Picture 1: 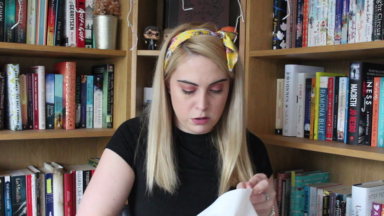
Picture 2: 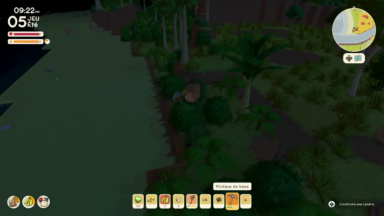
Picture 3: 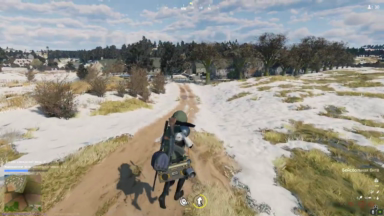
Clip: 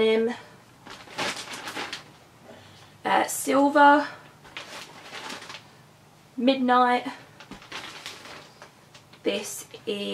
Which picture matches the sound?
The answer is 1